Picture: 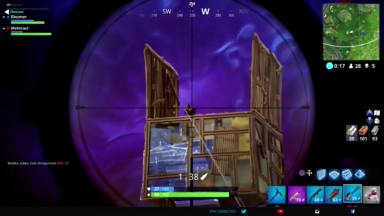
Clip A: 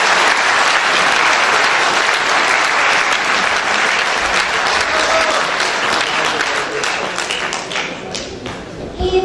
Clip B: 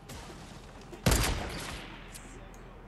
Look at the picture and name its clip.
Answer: B